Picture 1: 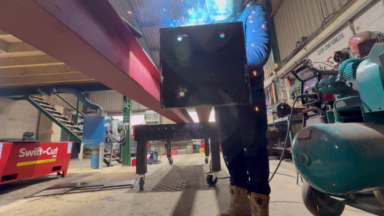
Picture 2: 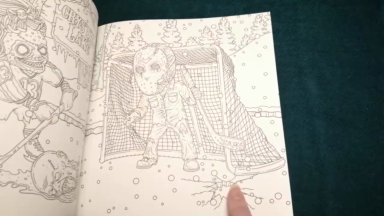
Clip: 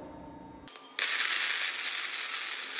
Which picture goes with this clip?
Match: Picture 1